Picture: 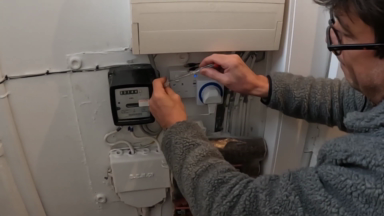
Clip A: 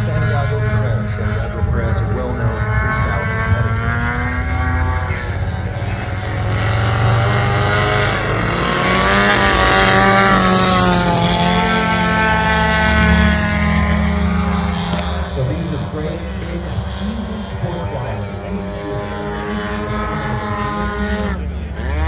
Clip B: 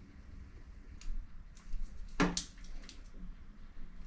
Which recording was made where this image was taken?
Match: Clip B